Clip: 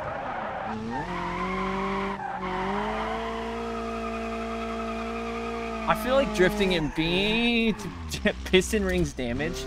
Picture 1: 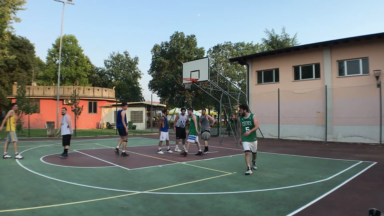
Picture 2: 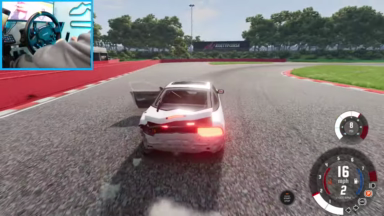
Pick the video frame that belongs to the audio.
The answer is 2